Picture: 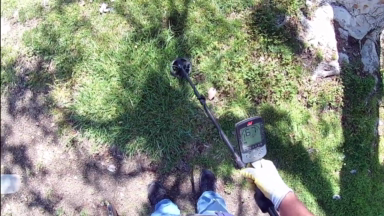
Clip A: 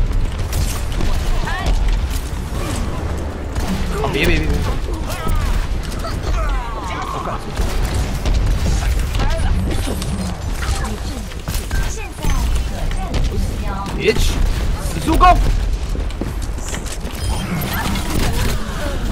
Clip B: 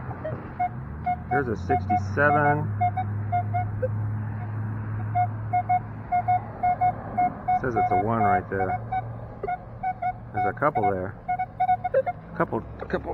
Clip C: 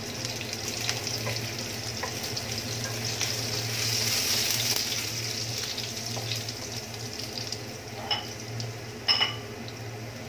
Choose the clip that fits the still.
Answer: B